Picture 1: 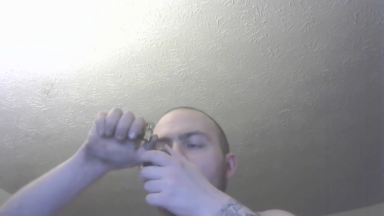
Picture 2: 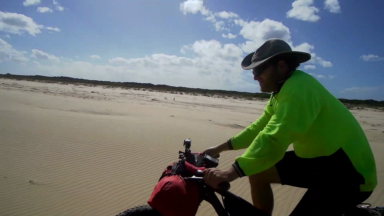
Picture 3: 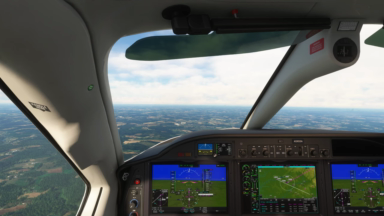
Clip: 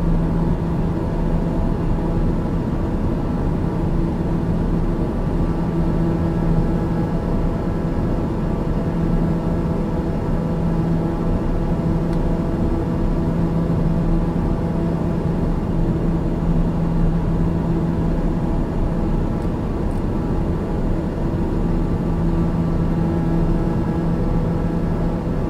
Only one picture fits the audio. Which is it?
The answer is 3